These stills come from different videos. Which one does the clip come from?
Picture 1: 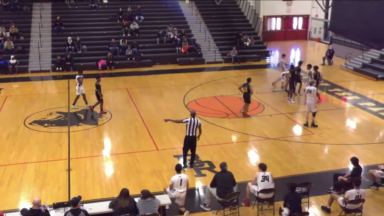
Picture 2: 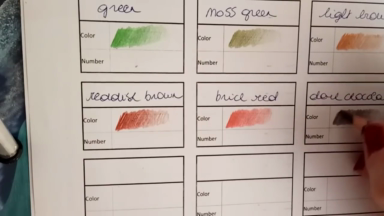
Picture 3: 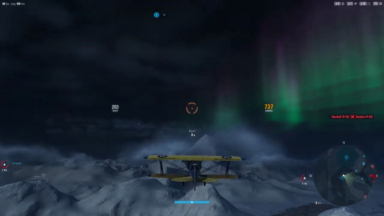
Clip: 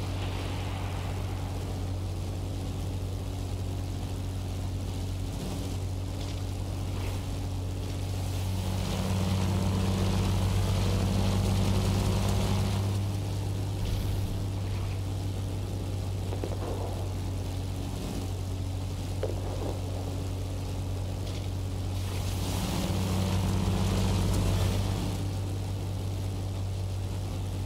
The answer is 3